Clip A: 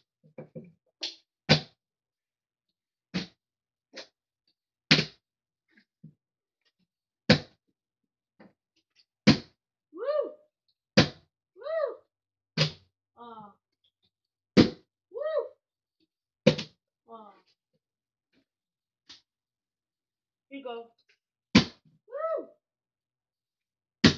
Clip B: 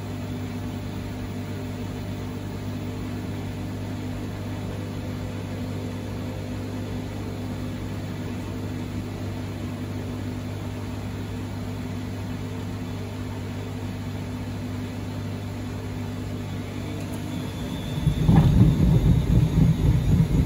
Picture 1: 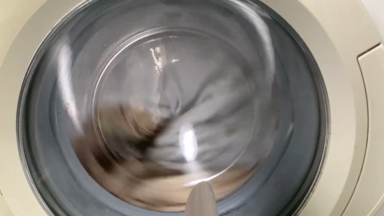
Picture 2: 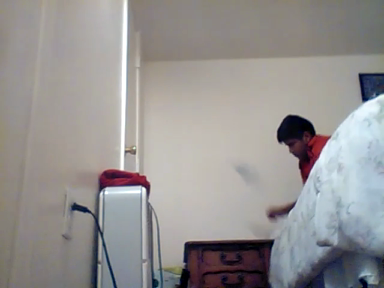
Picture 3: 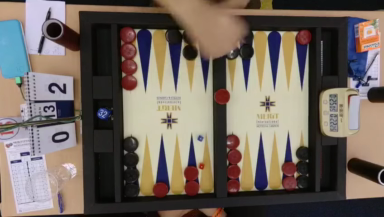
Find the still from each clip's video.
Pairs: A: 2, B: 1